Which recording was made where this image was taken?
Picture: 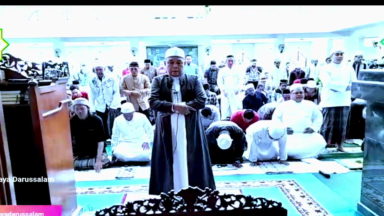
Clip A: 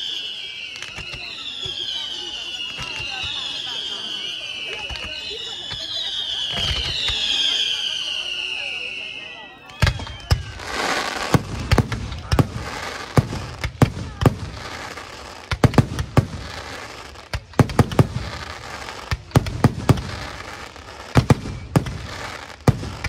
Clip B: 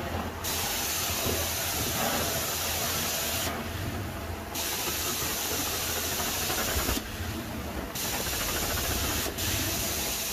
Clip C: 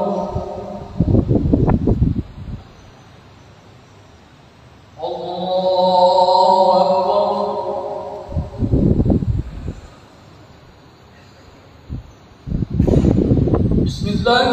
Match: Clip C